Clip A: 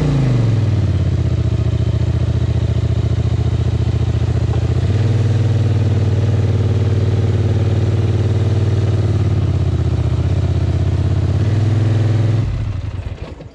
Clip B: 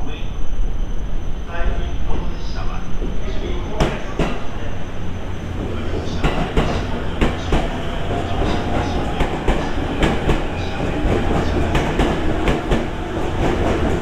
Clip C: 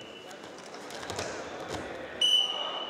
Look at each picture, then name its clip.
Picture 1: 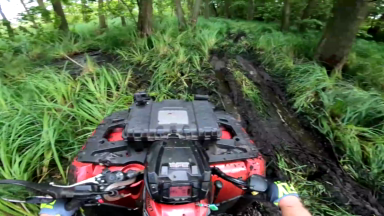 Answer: A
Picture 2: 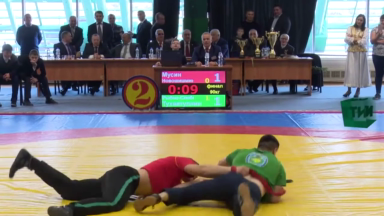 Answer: C